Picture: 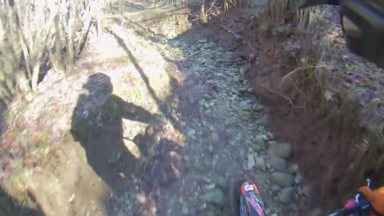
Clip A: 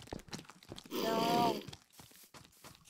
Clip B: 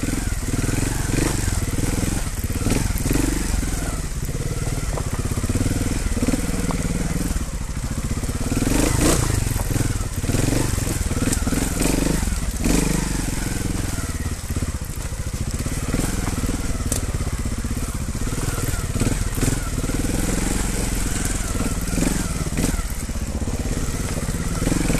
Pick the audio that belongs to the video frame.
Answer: B